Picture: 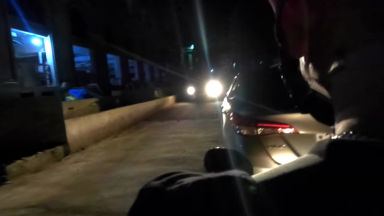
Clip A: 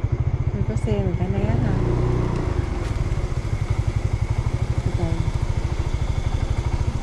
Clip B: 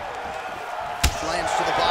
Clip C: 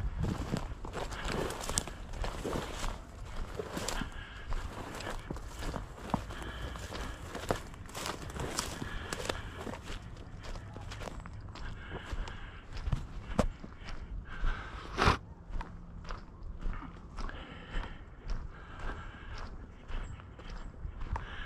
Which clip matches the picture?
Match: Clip A